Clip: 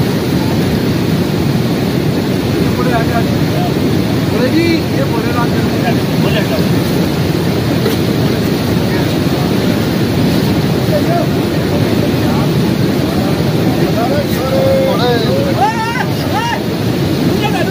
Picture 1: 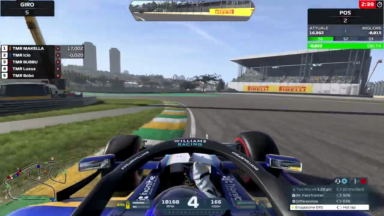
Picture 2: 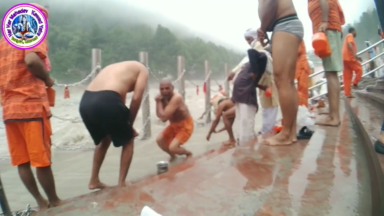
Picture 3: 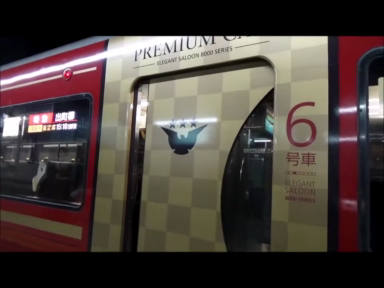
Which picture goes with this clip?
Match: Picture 2